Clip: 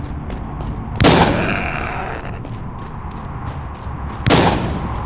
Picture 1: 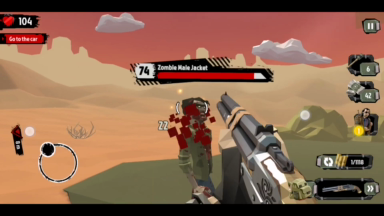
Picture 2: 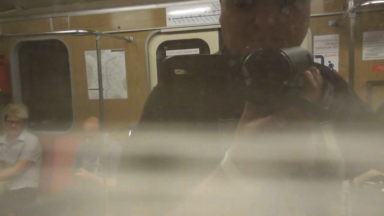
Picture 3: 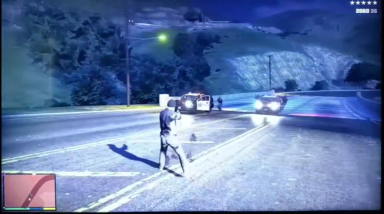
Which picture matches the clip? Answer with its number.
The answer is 1